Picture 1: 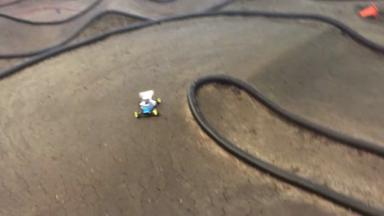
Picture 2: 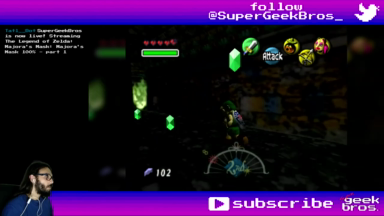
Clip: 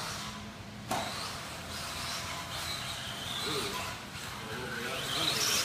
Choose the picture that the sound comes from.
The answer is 1